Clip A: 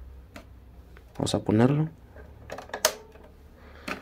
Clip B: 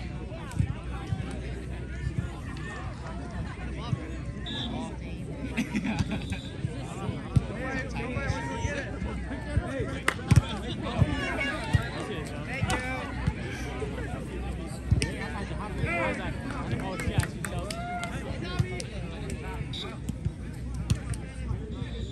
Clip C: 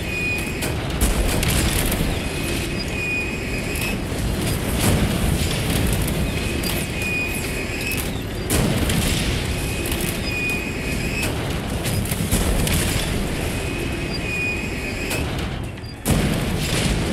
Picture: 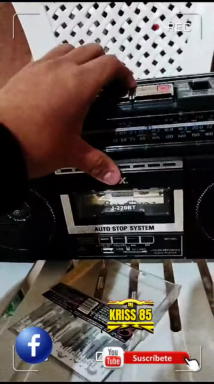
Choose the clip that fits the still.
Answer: A